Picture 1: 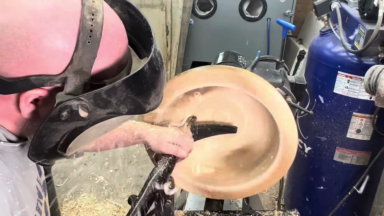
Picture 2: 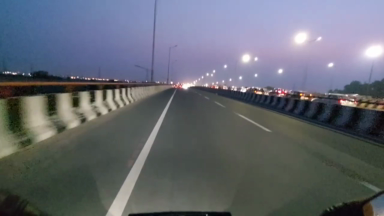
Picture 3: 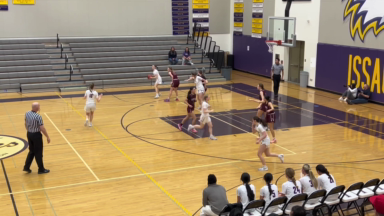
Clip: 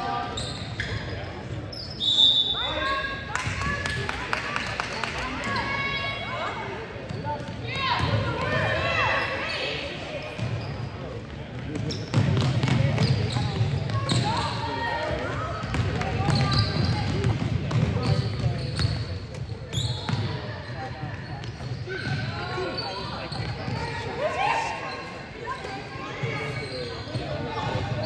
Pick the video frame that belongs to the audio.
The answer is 3